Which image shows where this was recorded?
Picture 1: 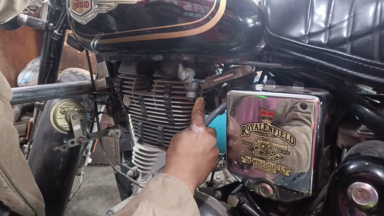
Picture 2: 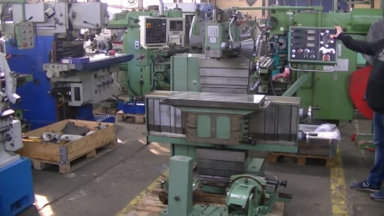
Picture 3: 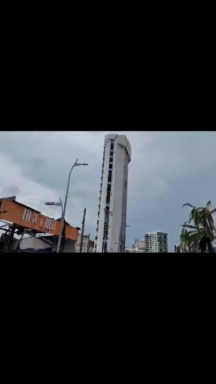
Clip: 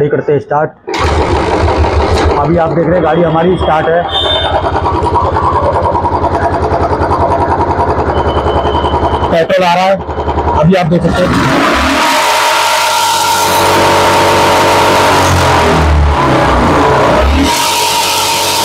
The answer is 1